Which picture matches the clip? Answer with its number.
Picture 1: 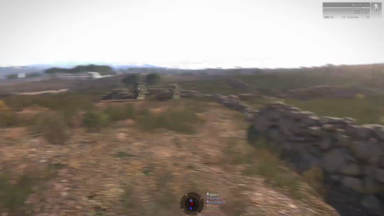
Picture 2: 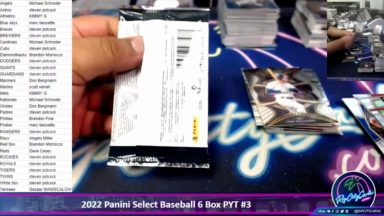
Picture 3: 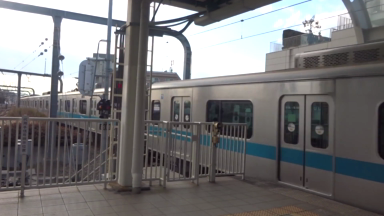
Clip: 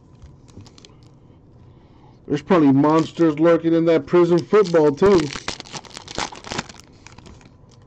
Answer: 2